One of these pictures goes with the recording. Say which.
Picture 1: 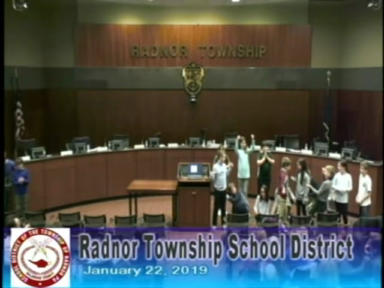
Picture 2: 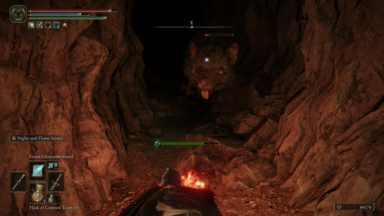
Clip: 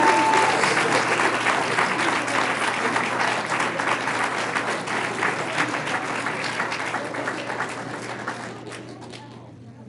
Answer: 1